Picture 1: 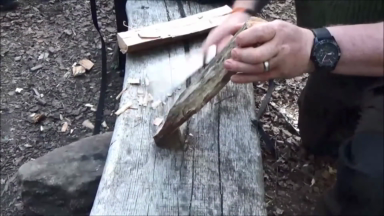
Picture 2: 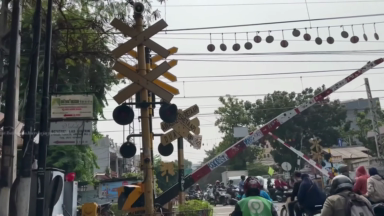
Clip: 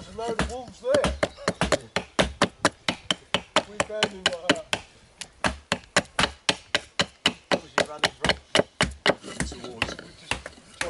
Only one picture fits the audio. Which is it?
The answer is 1